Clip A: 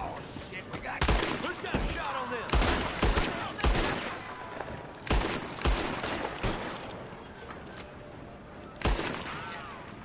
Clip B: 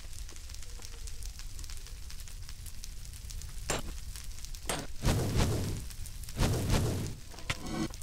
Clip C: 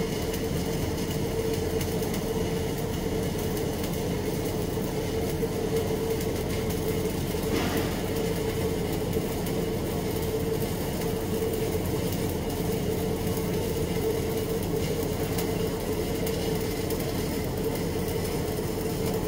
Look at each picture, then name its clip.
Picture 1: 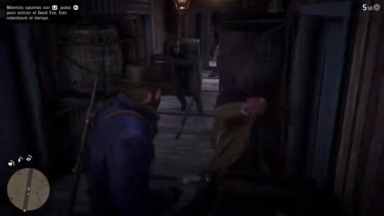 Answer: A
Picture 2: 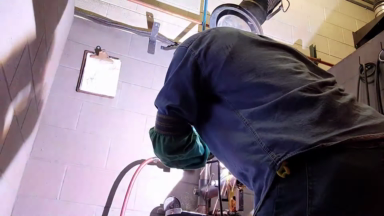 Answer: C